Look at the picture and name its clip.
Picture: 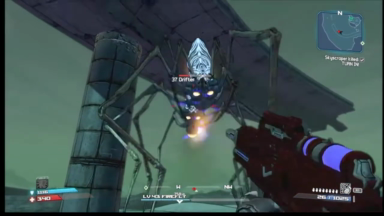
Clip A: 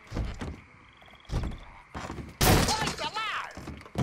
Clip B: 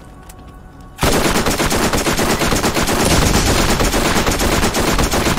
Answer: B